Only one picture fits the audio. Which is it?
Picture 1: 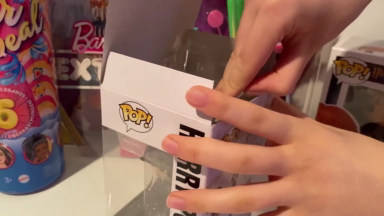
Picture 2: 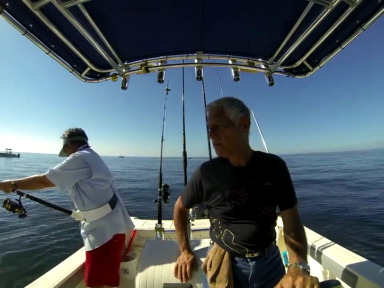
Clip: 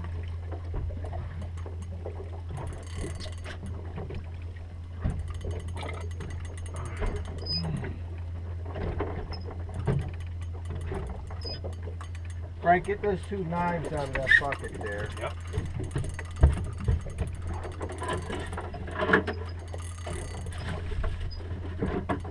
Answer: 2